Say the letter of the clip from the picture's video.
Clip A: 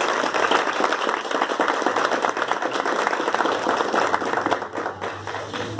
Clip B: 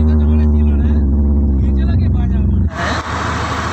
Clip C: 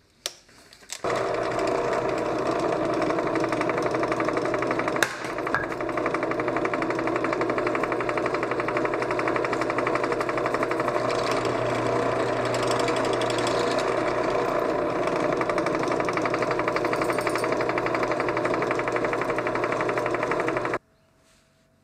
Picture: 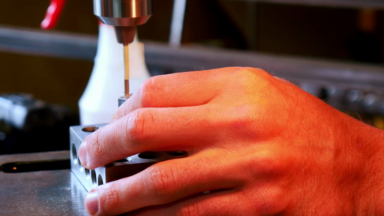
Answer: C